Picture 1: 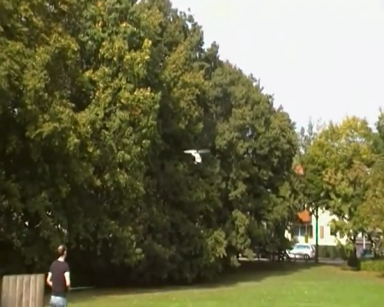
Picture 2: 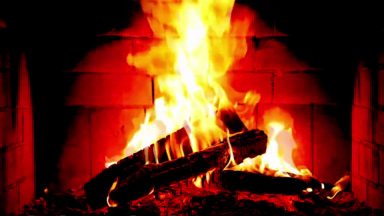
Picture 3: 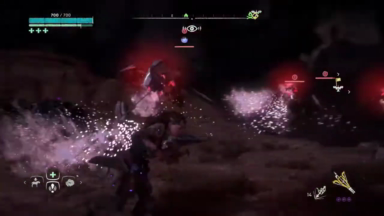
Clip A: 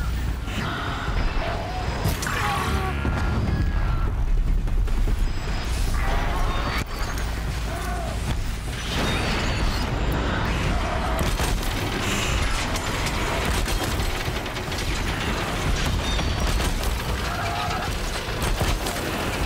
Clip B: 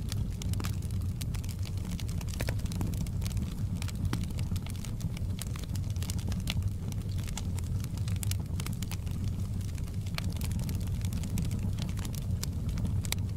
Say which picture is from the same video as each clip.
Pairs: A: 3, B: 2